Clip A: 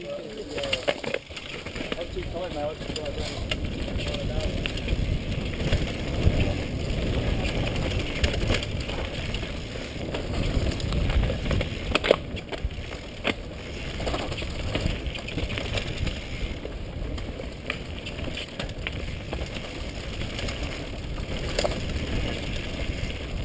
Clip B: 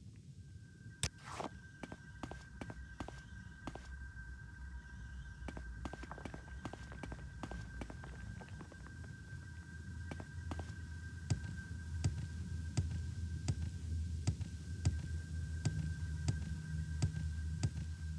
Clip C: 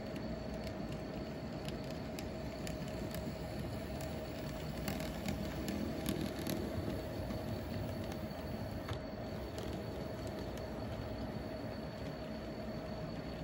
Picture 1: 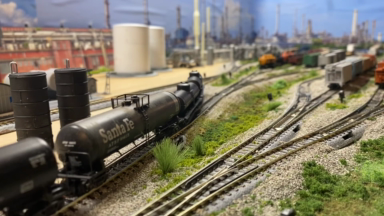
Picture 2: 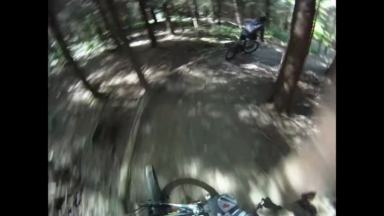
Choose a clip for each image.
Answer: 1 C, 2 A